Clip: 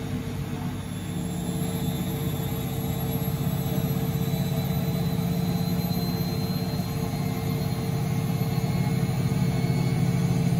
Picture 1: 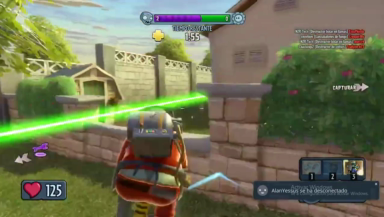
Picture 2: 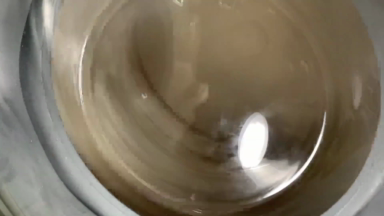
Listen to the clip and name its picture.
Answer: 2